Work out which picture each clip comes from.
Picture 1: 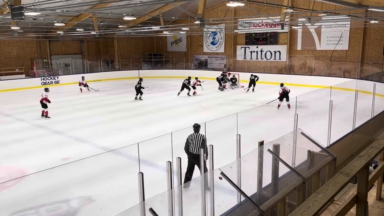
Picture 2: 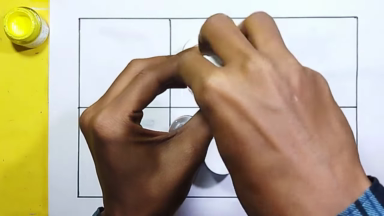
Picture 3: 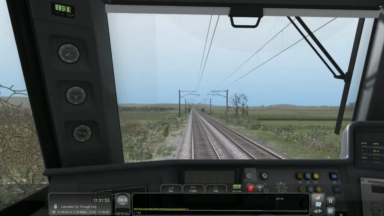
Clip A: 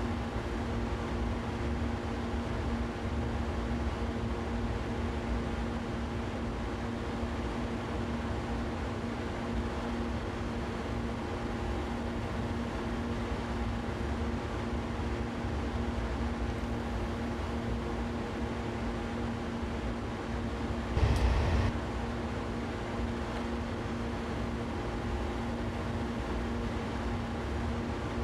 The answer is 3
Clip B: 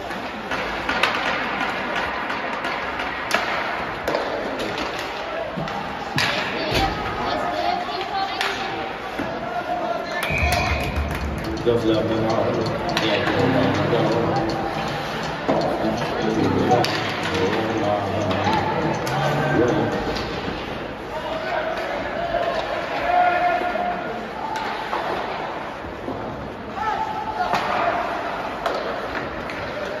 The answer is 1